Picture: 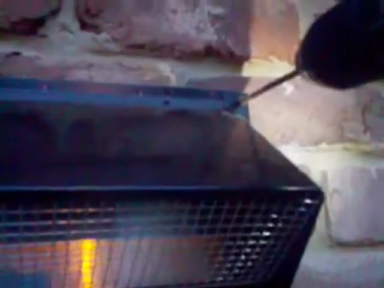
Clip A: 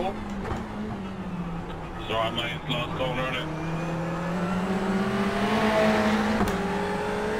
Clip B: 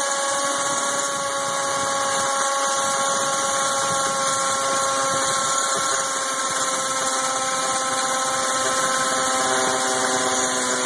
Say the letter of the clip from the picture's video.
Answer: B